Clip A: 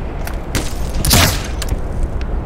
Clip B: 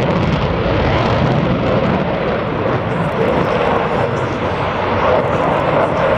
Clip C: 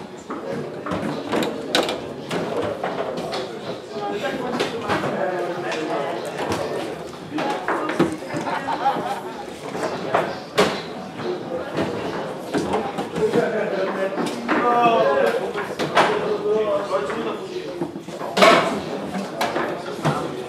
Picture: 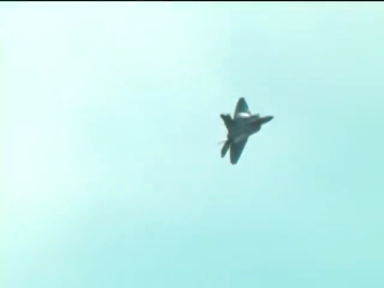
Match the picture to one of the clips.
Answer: B